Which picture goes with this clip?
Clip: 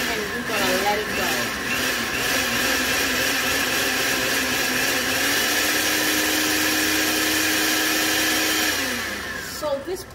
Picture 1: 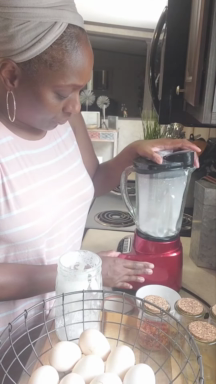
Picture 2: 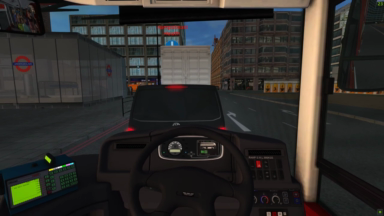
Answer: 1